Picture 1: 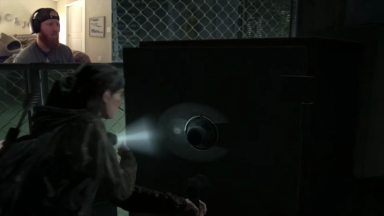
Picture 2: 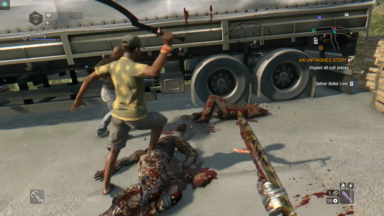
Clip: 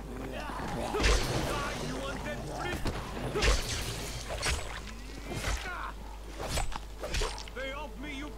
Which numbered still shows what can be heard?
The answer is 2